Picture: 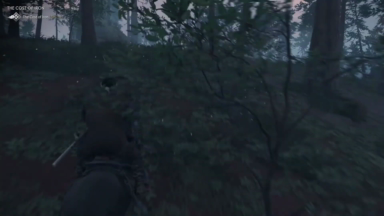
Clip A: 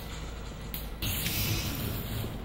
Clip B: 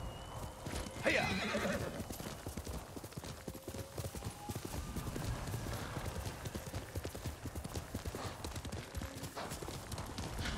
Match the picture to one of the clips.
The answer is B